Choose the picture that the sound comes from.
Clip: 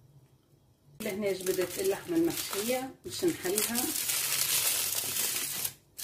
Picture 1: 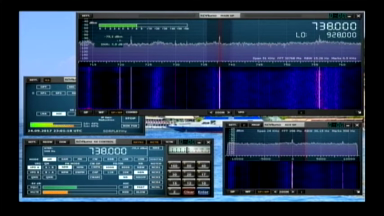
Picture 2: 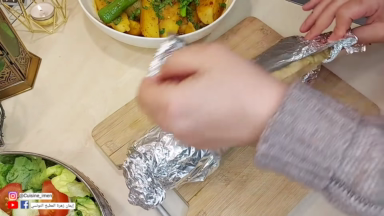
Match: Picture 2